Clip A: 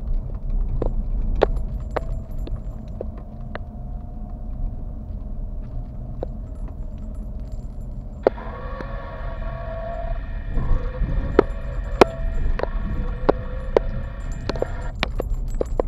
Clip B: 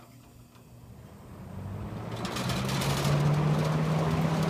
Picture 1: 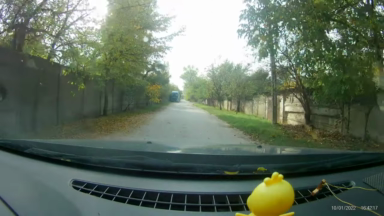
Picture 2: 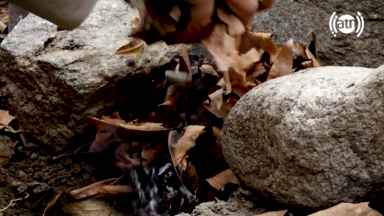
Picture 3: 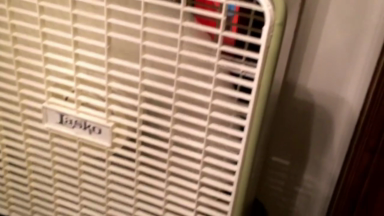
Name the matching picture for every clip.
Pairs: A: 1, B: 3